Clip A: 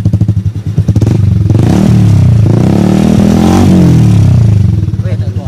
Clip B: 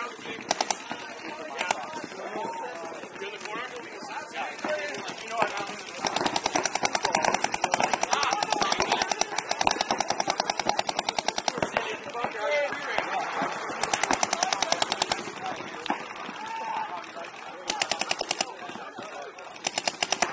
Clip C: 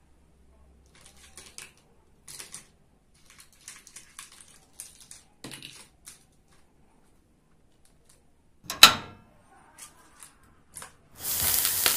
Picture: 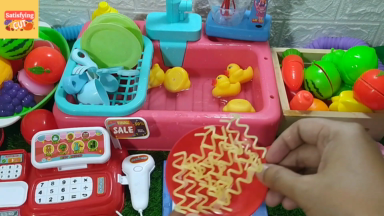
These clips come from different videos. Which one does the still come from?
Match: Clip C